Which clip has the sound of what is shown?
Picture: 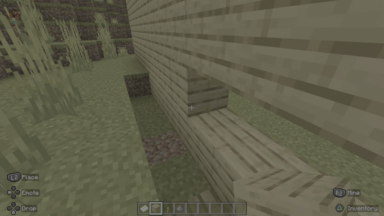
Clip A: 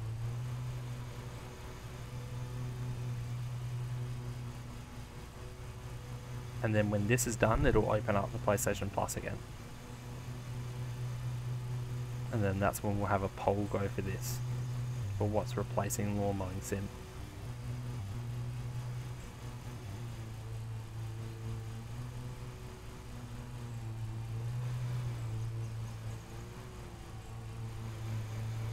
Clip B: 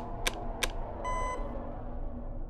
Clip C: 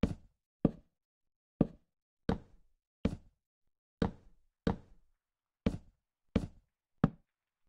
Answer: C